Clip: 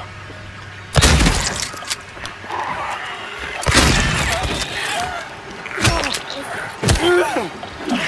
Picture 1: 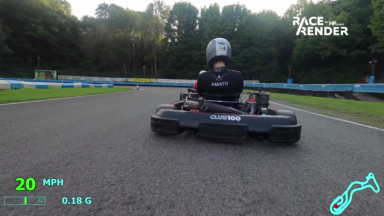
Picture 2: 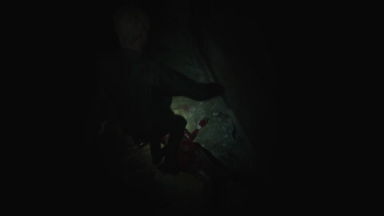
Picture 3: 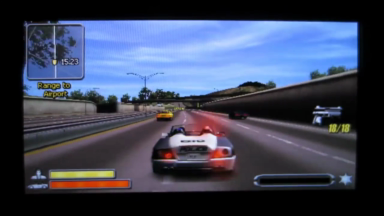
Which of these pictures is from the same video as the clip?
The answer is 2